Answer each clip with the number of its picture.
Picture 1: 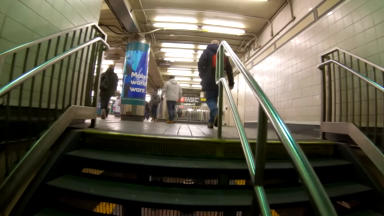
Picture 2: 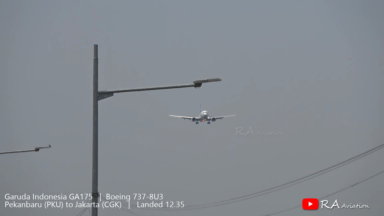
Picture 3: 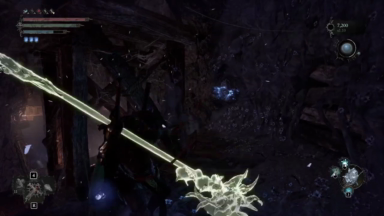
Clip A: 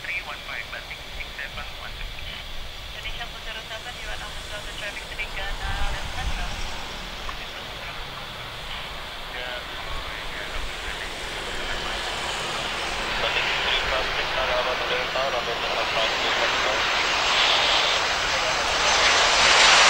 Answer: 2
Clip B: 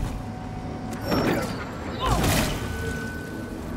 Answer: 3